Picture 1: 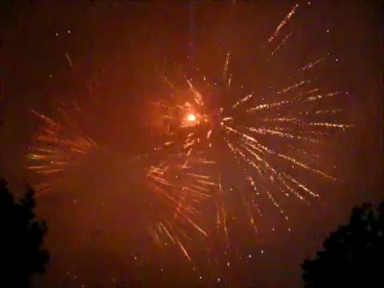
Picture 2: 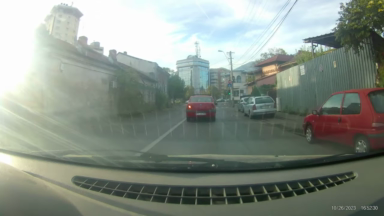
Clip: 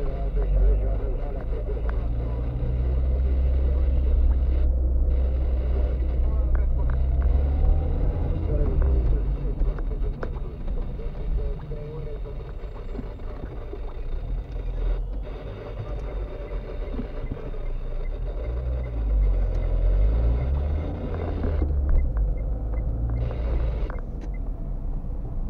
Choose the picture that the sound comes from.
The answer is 2